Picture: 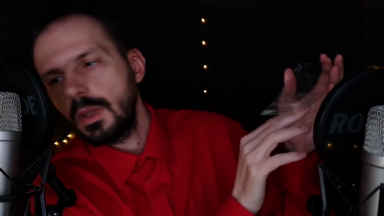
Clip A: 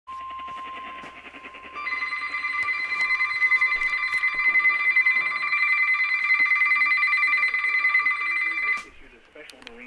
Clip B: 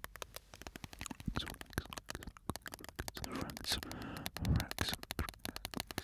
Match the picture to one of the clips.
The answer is B